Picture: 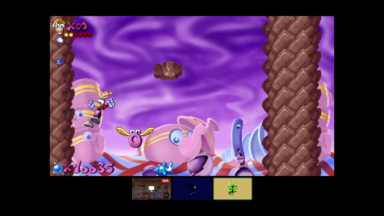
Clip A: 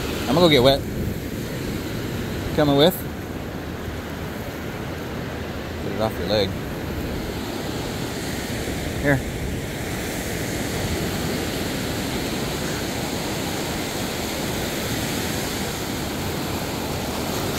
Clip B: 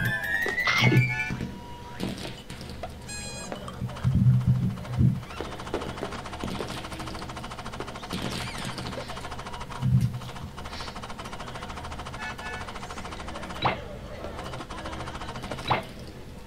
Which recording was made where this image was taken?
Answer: B